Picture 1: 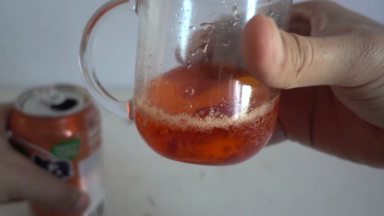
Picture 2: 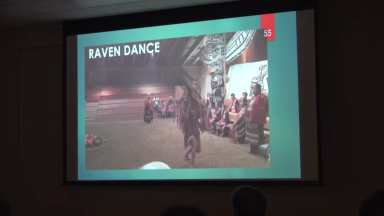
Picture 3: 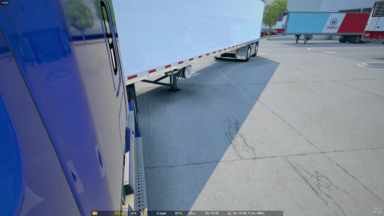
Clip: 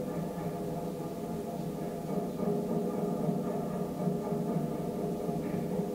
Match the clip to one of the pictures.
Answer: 2